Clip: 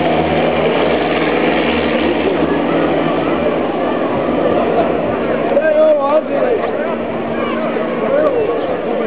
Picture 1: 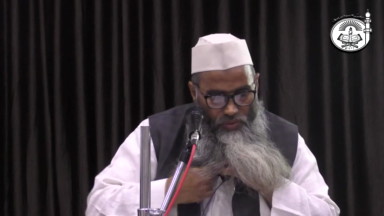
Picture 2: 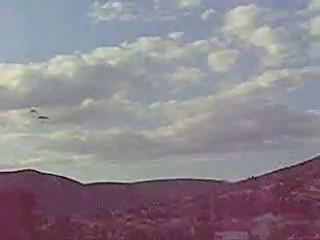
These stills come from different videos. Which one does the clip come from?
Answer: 2